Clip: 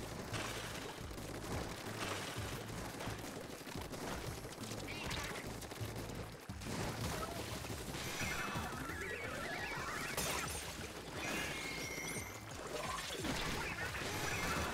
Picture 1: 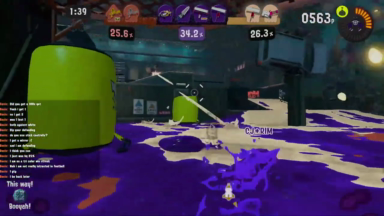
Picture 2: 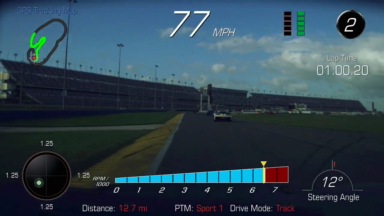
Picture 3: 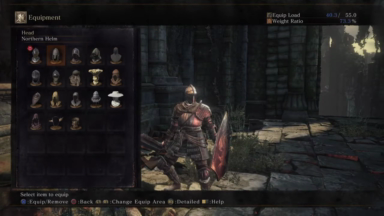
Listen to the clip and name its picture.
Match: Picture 1